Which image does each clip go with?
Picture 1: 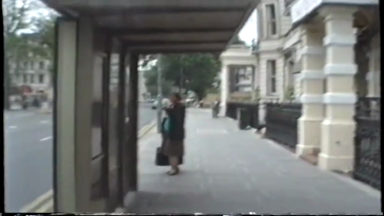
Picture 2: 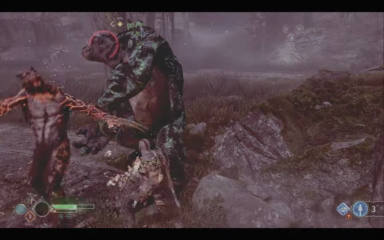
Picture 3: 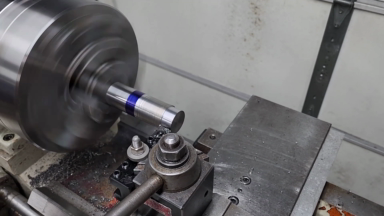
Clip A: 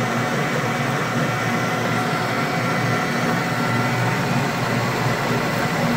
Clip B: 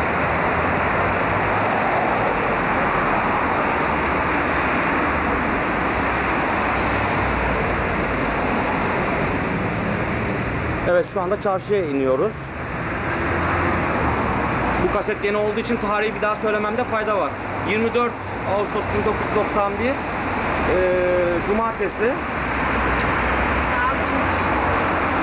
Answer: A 3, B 1